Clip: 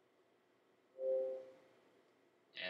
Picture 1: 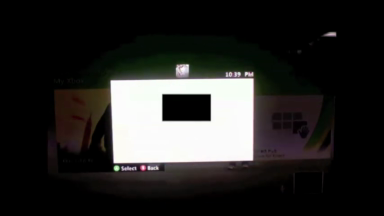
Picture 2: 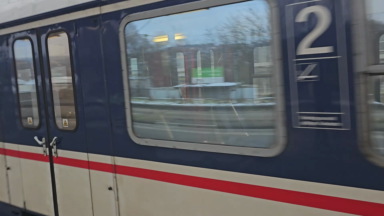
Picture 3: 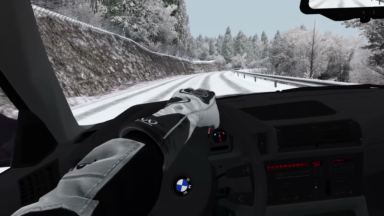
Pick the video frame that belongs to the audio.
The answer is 1